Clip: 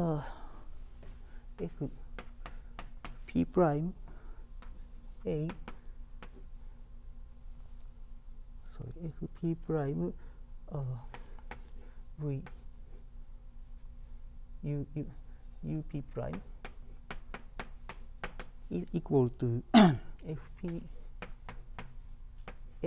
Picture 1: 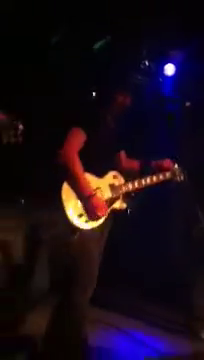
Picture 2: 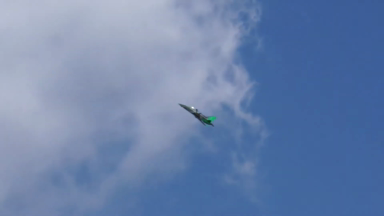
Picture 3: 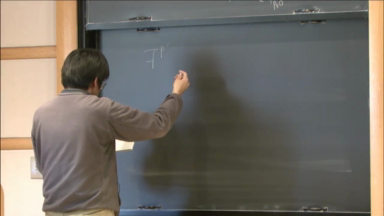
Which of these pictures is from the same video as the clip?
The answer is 3